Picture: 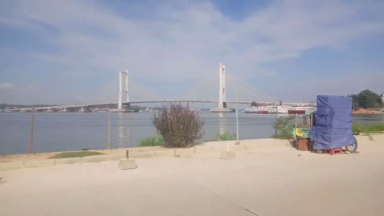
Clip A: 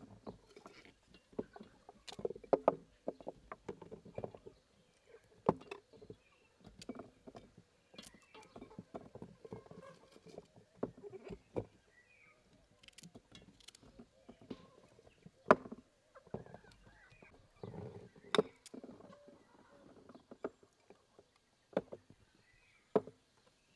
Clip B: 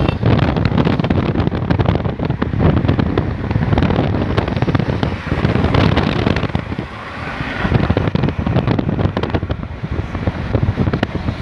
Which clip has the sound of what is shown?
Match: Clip B